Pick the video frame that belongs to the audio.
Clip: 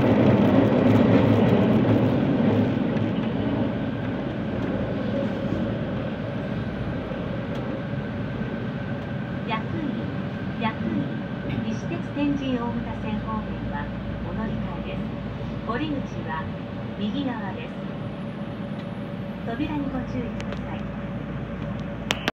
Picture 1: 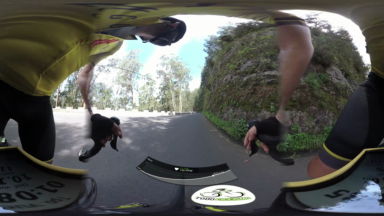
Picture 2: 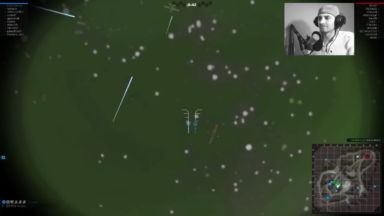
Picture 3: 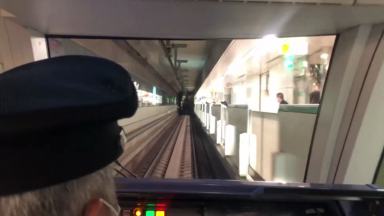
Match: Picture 3